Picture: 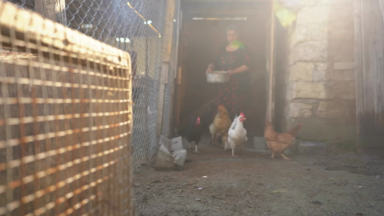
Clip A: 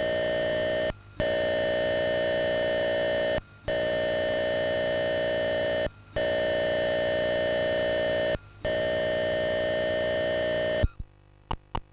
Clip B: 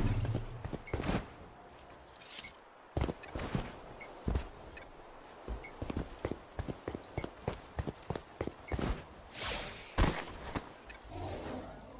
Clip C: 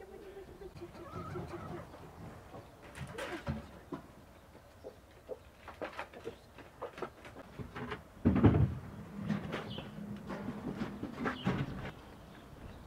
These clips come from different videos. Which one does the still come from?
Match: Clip C